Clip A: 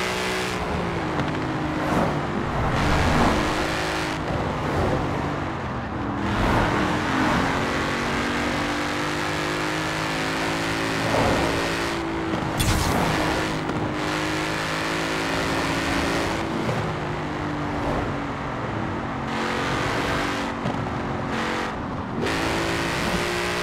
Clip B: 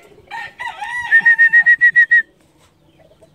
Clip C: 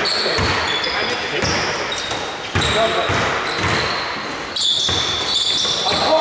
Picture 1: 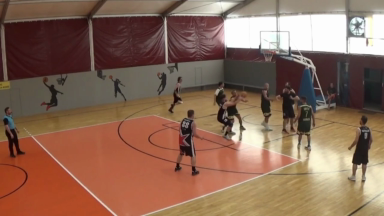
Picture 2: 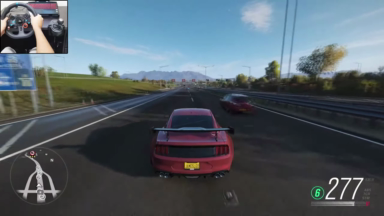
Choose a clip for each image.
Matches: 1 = C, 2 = A